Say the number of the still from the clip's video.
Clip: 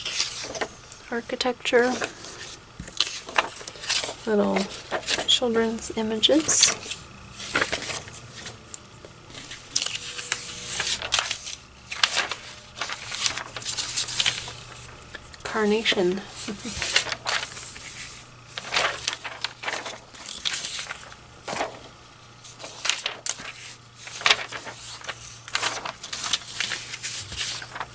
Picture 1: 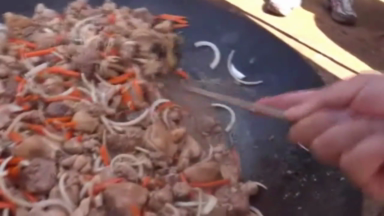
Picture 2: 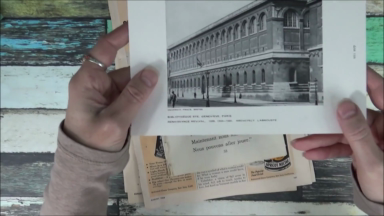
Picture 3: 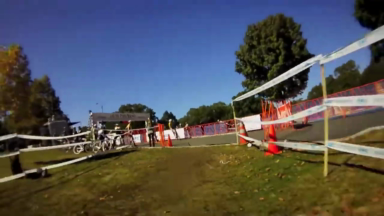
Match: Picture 2